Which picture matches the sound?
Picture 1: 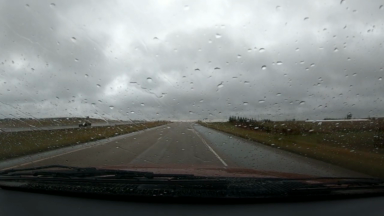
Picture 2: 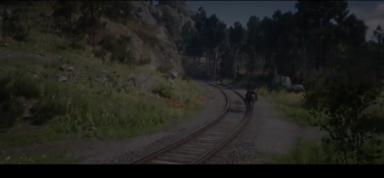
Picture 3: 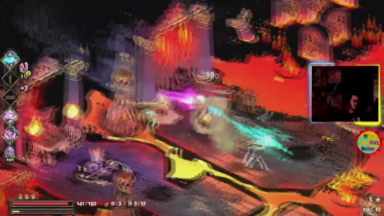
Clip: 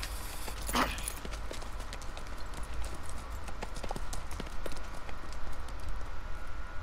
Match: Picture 2